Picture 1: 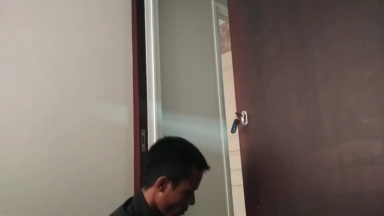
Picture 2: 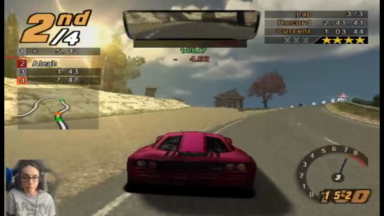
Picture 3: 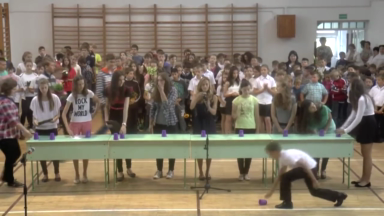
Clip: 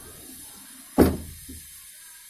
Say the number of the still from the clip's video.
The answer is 1